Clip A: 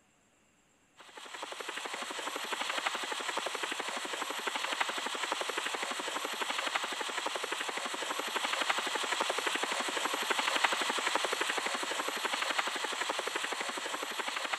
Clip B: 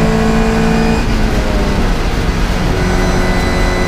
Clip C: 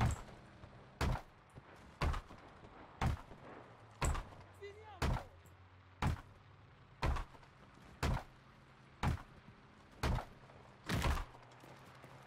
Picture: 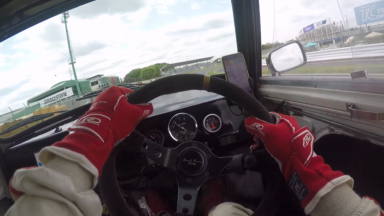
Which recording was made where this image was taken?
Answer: B